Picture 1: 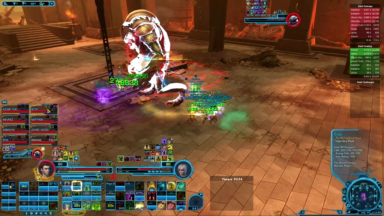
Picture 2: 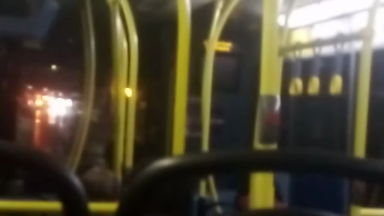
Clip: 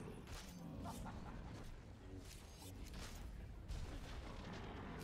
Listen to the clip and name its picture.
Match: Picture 1